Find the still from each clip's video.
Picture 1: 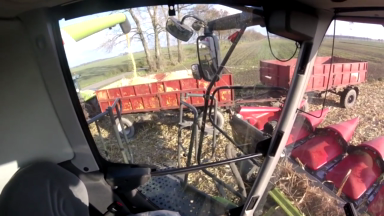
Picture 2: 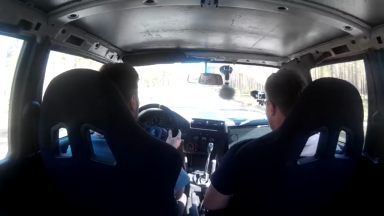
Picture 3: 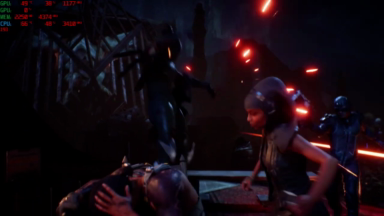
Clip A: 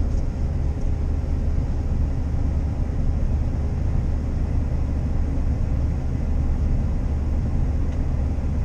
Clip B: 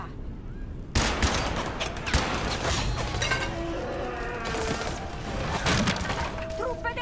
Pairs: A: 1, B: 3